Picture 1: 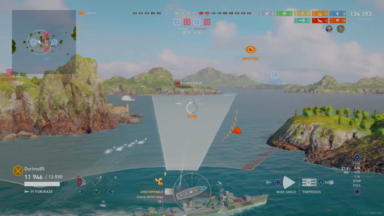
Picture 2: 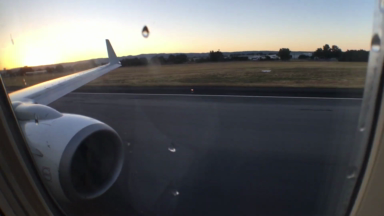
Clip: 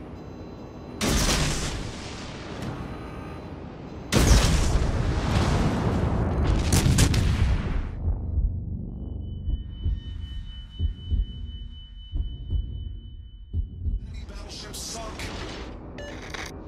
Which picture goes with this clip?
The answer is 1